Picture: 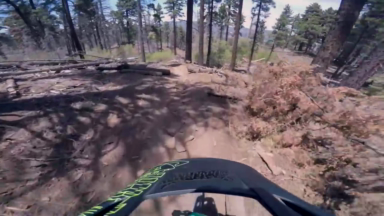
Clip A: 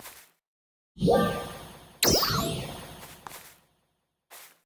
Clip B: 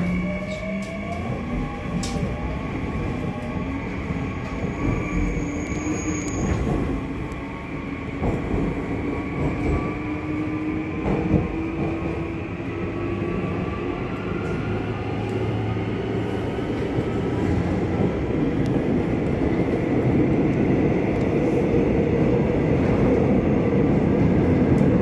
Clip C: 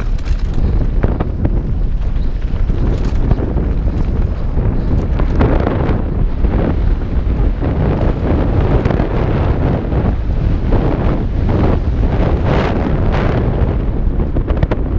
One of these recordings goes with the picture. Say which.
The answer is C